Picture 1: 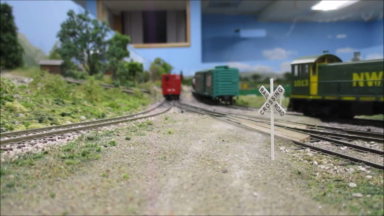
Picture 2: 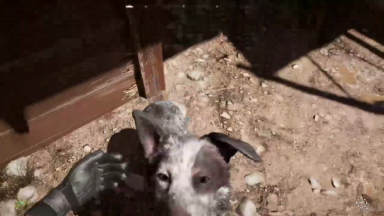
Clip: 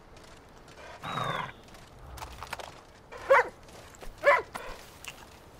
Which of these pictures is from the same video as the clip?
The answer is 2